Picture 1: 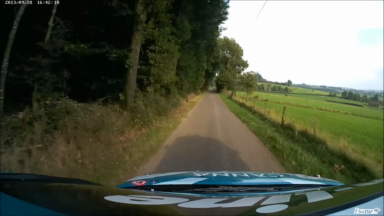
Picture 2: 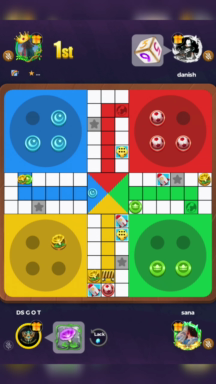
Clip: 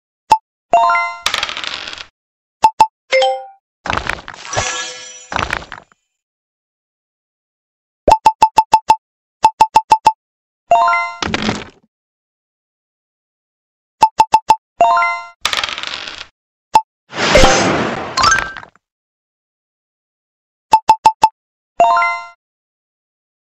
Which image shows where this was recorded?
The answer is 2